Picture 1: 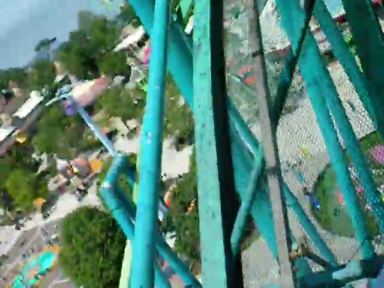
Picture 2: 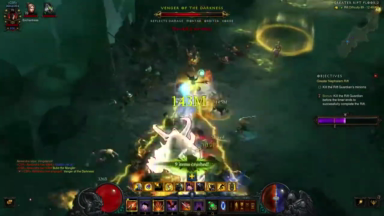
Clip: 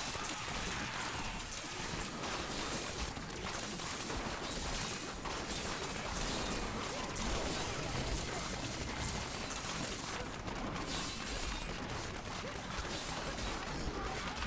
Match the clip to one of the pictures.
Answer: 2